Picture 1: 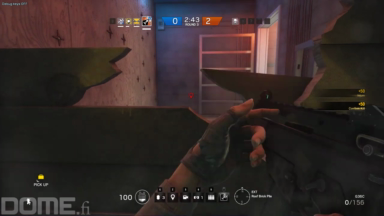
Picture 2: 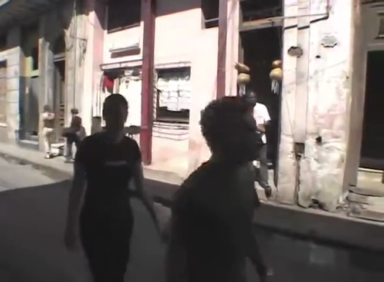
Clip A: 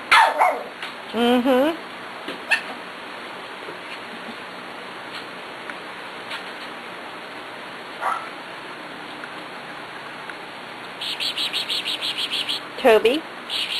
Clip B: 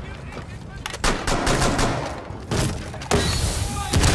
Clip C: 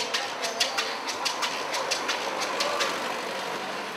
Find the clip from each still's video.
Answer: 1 B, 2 C